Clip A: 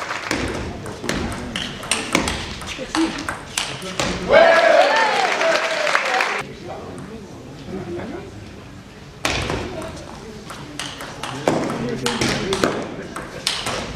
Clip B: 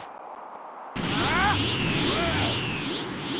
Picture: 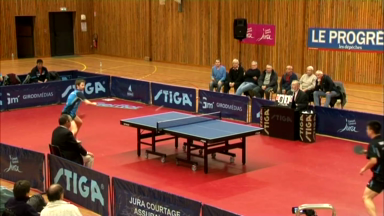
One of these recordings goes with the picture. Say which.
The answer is A